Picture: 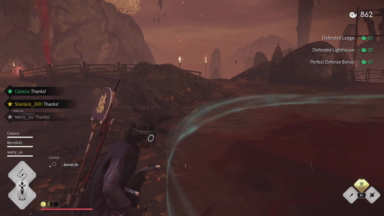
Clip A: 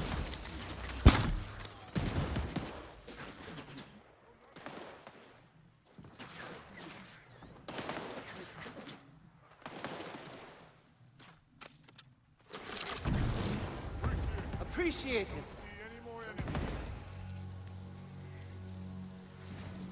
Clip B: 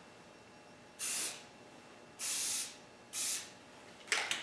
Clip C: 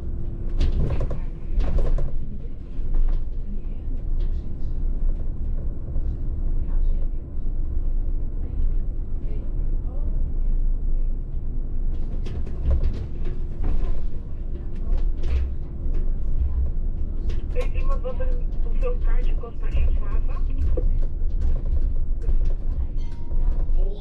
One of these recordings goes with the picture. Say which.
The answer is A